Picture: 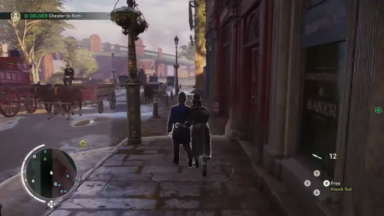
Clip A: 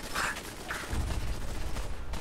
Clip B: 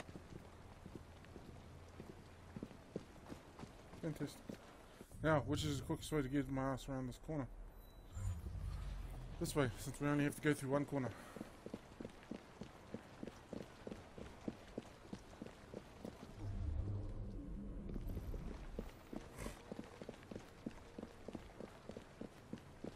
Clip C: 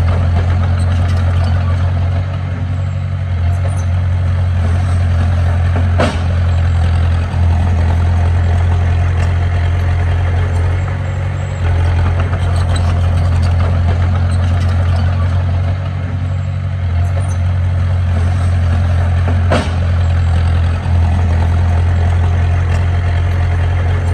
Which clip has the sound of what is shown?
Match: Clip B